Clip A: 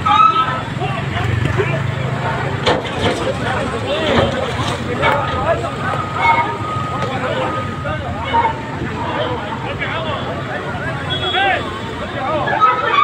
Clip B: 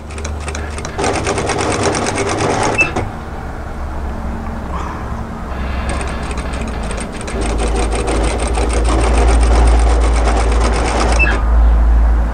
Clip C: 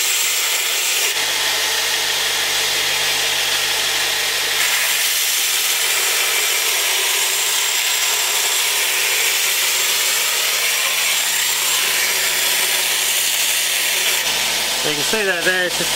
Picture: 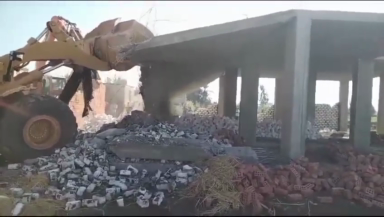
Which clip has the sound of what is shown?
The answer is A